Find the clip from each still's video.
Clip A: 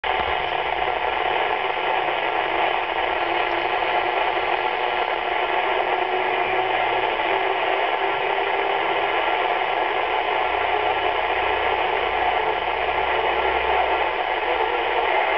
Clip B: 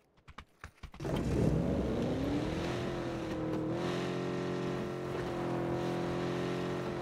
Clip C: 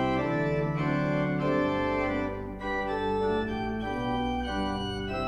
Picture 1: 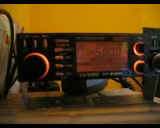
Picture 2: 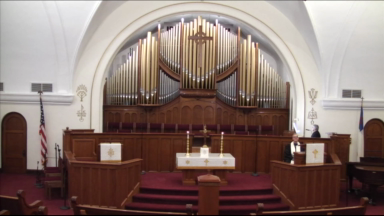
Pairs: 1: A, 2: C